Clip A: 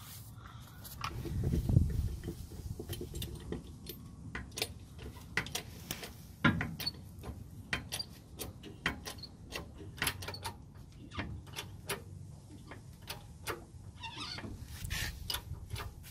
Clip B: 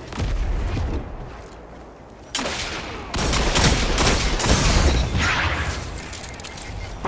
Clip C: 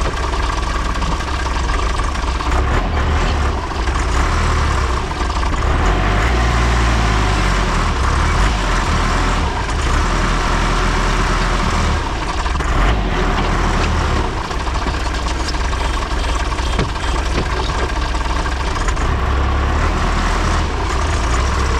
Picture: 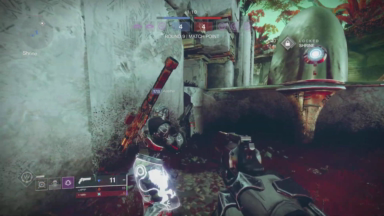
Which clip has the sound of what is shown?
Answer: B